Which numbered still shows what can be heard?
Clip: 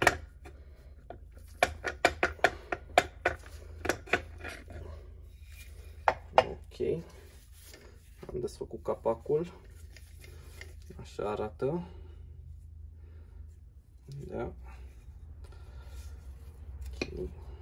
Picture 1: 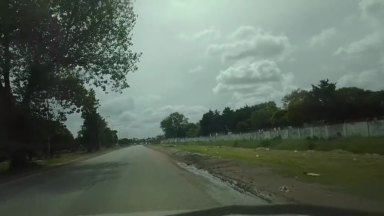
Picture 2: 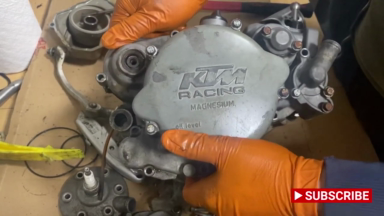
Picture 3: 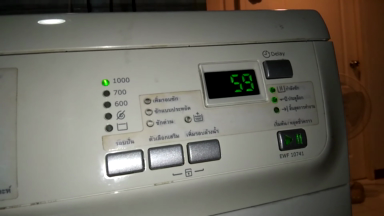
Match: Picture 2